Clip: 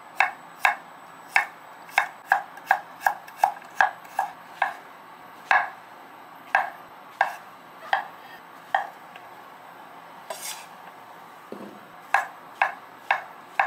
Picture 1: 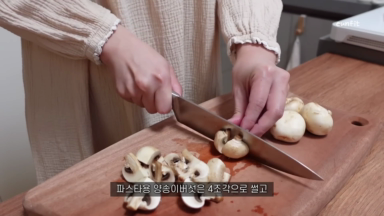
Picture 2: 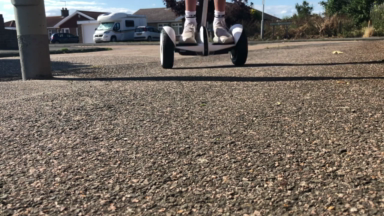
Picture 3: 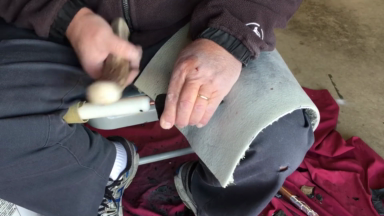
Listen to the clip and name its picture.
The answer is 1